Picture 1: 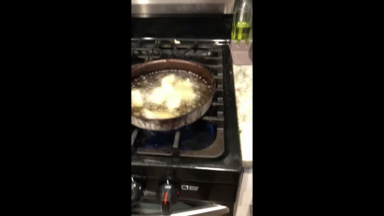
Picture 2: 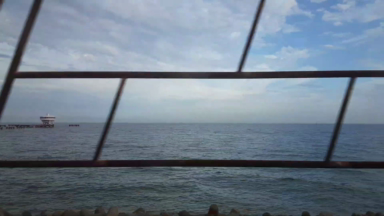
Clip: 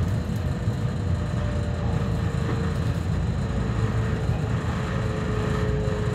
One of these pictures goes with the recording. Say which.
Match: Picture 2